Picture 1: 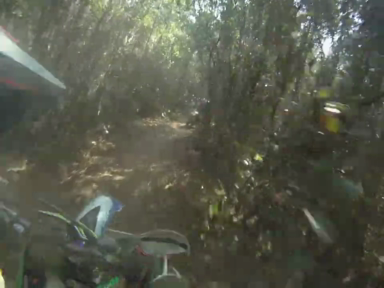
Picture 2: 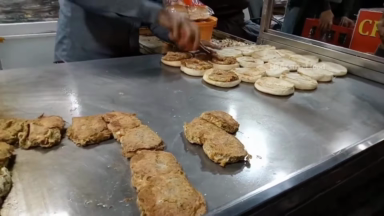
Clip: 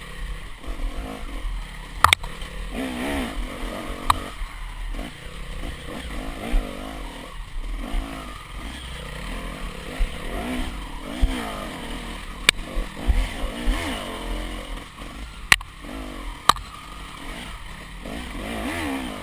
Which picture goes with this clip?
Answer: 1